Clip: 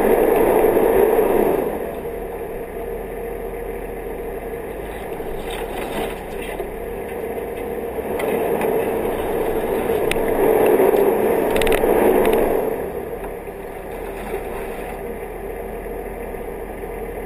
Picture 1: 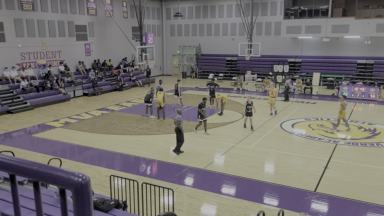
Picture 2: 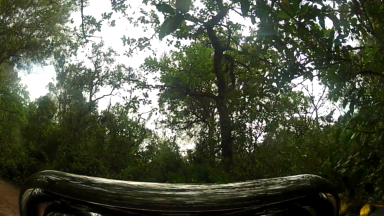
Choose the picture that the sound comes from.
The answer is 2